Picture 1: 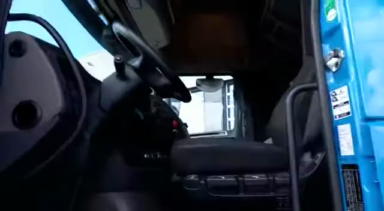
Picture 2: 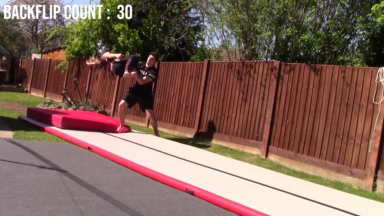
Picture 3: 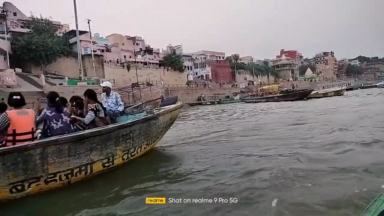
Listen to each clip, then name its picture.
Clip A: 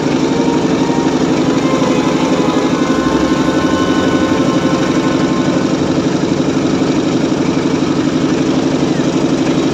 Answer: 3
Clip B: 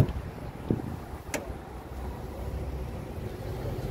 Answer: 1